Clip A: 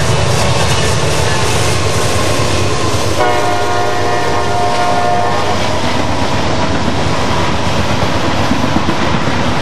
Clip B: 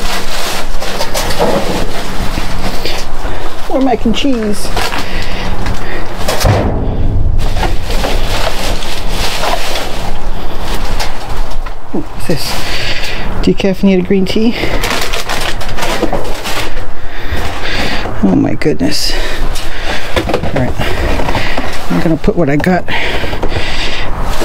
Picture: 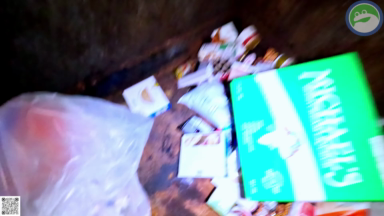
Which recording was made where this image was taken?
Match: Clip B